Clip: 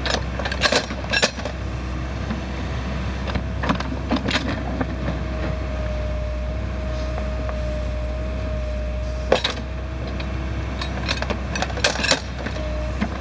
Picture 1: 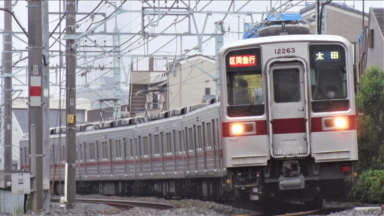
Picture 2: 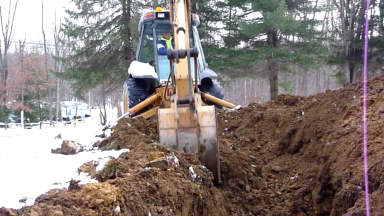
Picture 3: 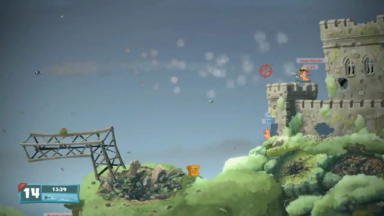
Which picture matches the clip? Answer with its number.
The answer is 2